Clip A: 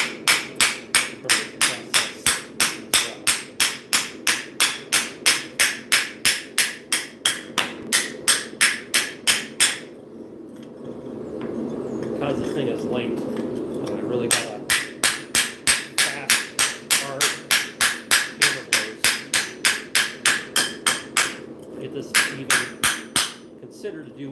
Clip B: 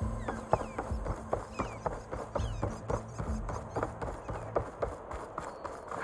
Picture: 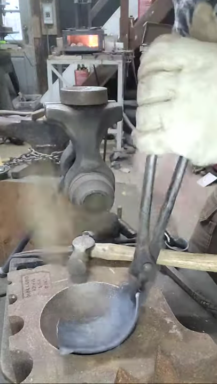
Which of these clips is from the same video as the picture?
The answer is A